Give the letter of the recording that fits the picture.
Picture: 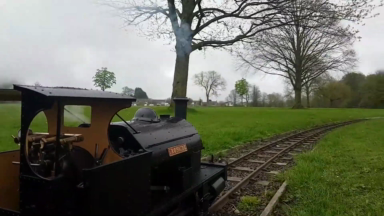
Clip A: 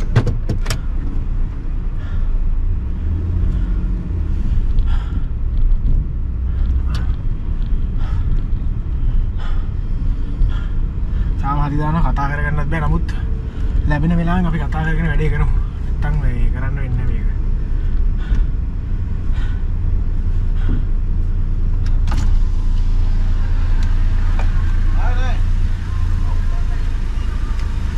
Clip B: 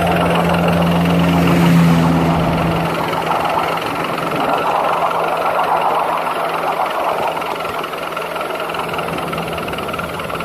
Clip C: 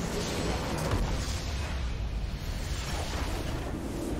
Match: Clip B